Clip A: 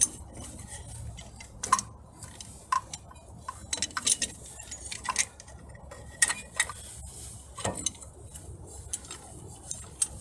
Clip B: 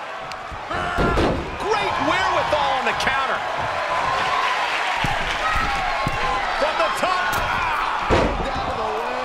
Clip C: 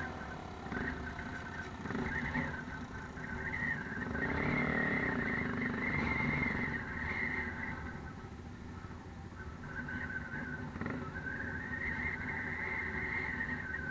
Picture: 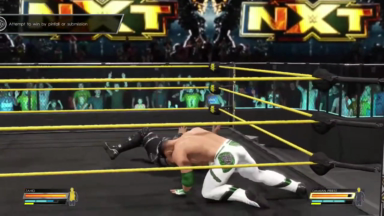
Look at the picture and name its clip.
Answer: B